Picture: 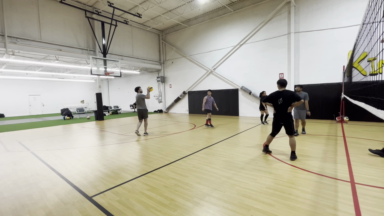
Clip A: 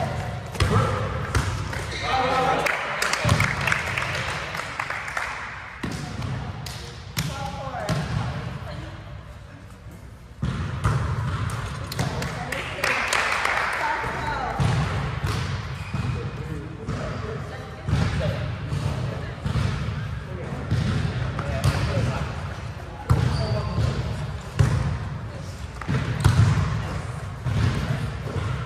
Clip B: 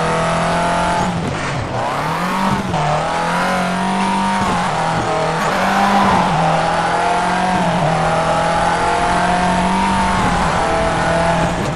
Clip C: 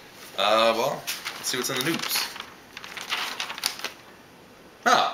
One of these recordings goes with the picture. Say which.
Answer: A